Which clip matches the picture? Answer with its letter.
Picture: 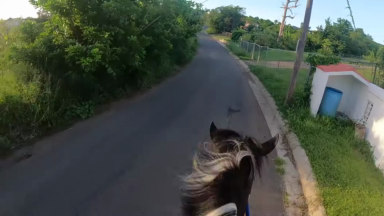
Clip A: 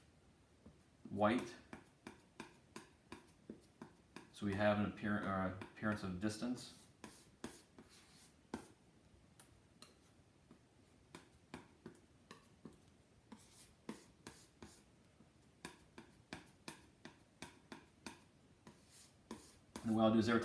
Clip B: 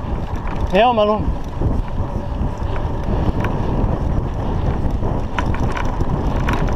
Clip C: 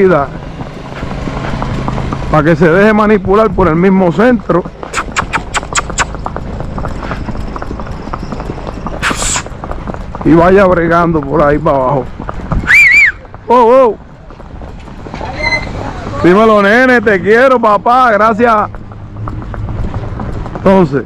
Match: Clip C